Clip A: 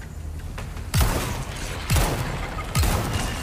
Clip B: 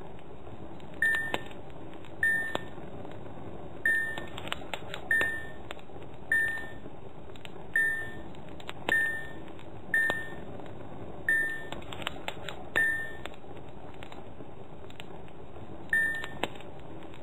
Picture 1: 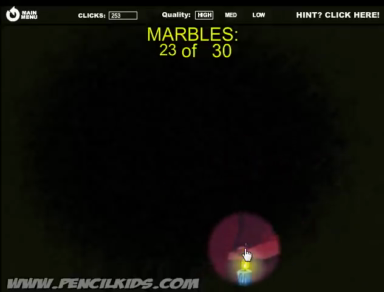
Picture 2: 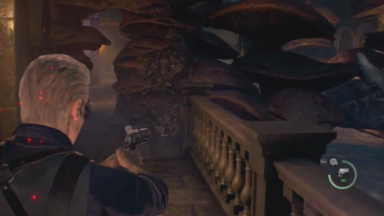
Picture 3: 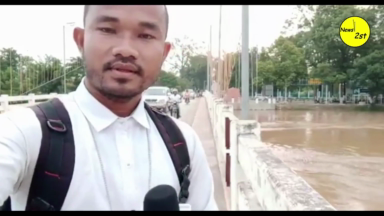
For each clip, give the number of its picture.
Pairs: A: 2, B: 1